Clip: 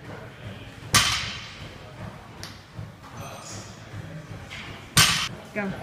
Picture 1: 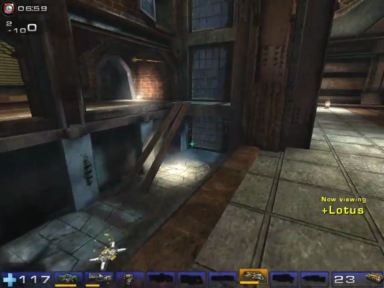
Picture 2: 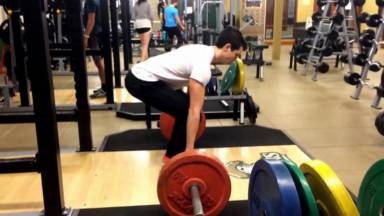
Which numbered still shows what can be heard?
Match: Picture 2